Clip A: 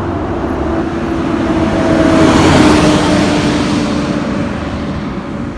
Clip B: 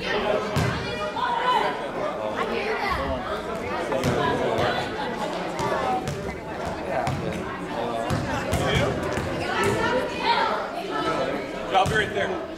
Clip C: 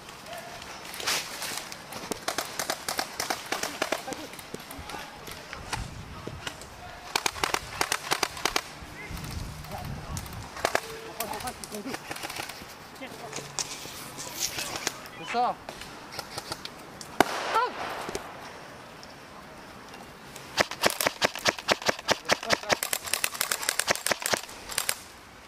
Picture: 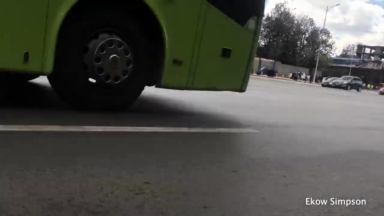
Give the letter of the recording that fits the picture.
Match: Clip A